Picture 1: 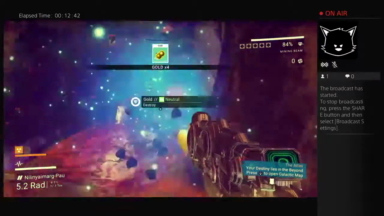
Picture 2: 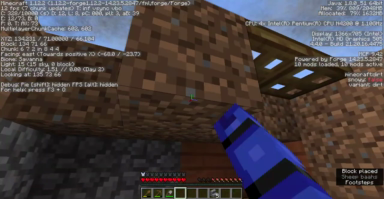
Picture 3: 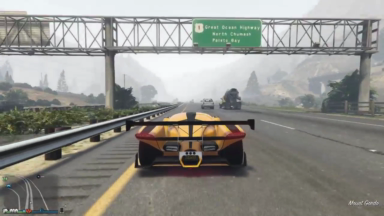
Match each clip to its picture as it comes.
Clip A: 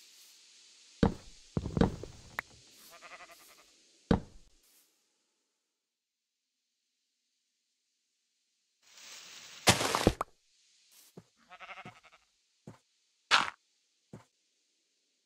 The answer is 2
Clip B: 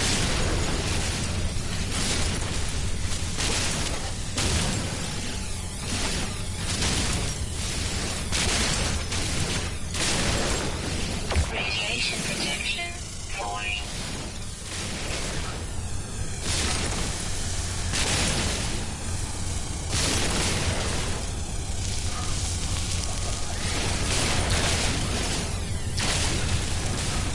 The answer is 1